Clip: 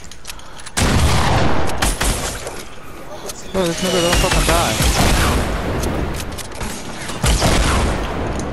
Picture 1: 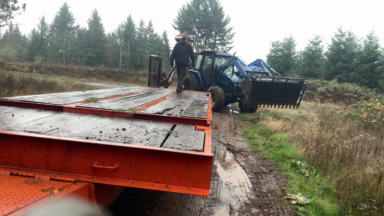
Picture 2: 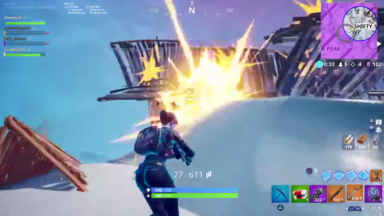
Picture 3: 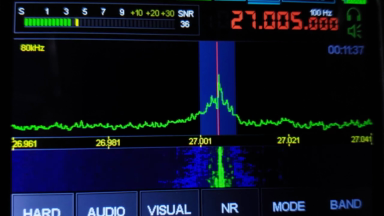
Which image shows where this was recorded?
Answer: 2